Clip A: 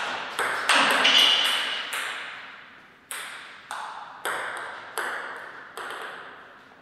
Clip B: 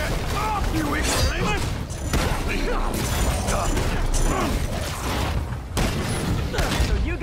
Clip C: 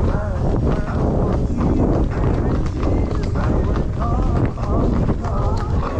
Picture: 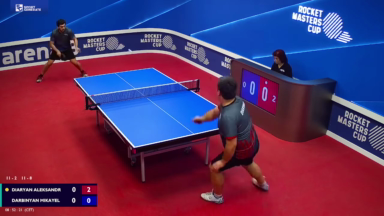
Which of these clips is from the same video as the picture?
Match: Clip A